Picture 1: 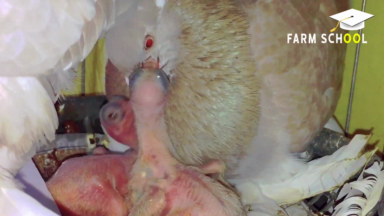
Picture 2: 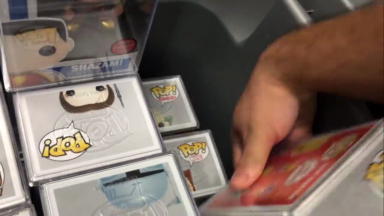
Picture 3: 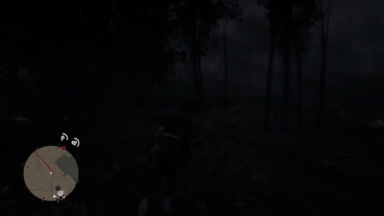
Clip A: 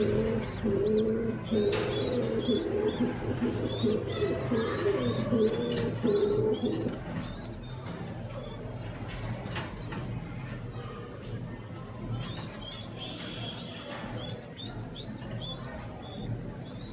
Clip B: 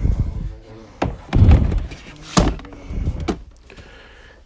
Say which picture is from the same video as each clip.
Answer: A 1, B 2